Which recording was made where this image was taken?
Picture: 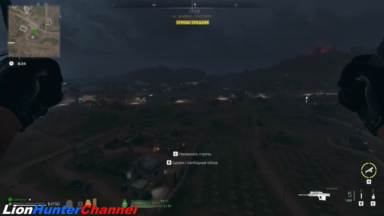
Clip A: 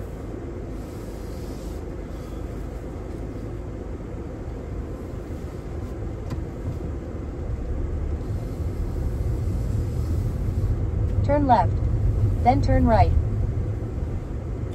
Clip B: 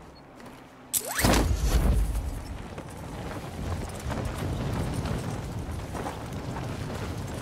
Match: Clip B